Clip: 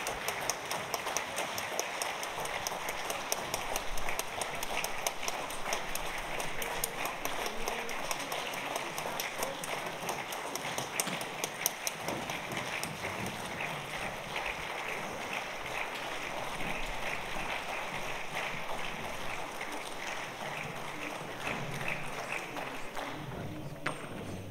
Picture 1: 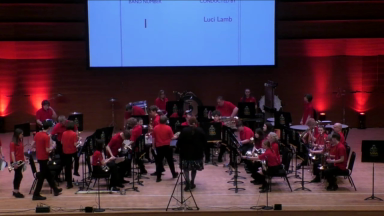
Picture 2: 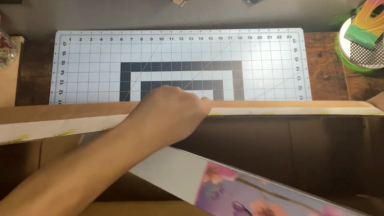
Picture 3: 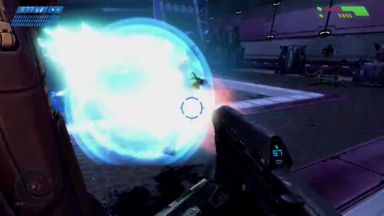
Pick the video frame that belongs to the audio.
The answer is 1